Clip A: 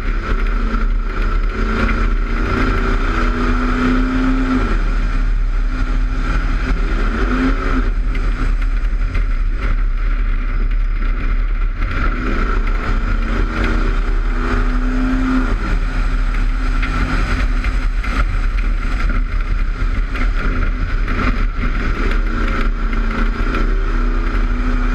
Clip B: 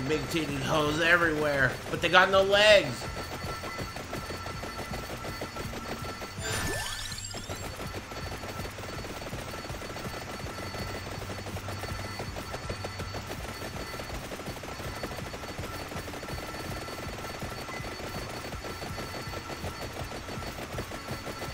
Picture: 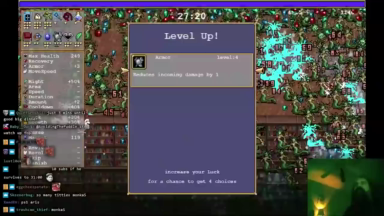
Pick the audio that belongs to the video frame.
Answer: B